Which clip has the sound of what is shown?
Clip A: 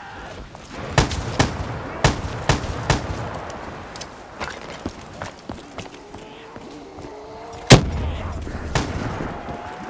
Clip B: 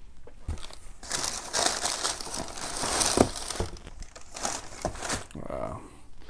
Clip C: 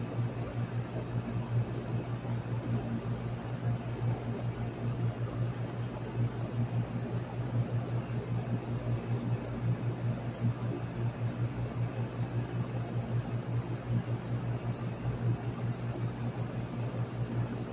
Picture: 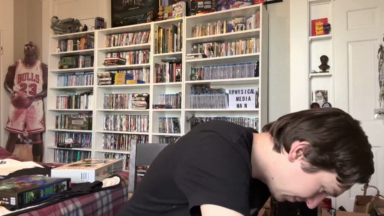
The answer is B